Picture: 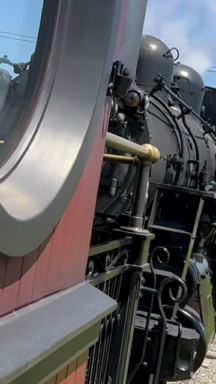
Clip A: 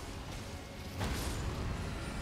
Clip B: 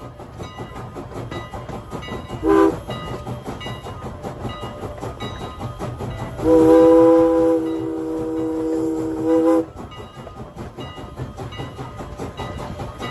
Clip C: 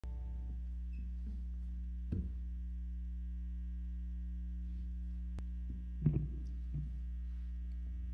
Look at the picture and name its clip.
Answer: B